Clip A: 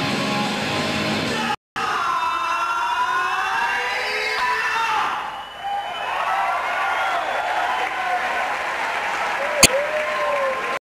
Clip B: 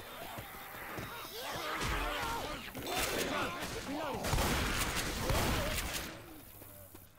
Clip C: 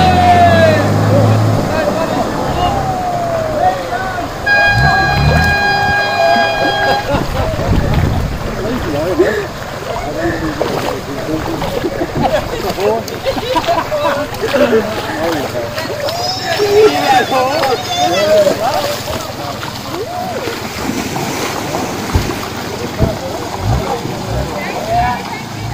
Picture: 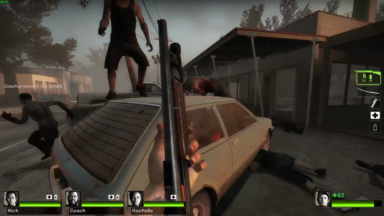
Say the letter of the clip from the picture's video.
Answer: B